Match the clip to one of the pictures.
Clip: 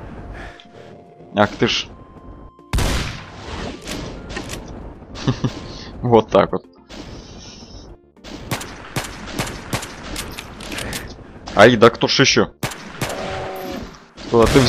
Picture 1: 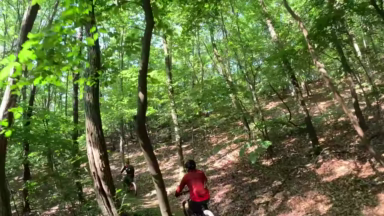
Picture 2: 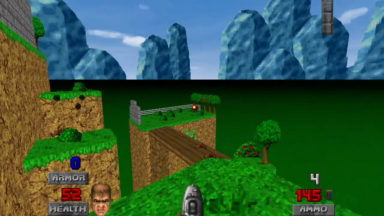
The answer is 2